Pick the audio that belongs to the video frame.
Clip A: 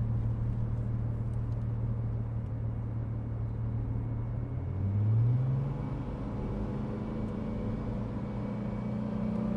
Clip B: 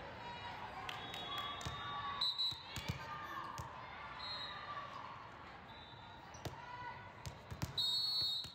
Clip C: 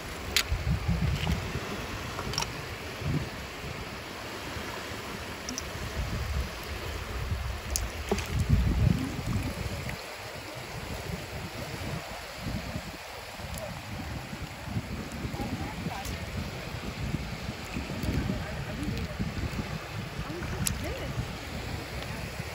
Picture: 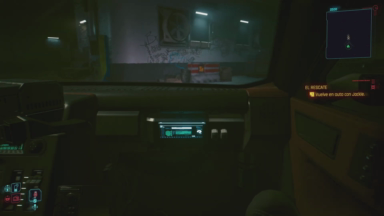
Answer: A